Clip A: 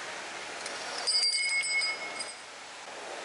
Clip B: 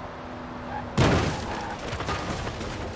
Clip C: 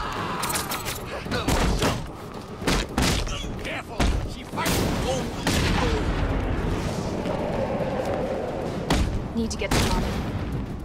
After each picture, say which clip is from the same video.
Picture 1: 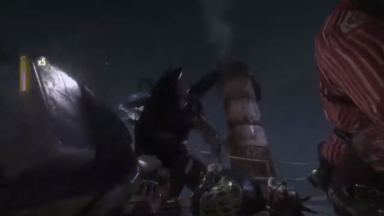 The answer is C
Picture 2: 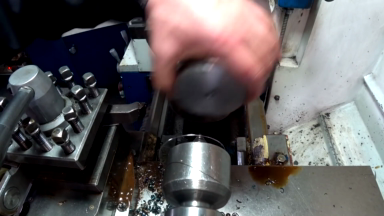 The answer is A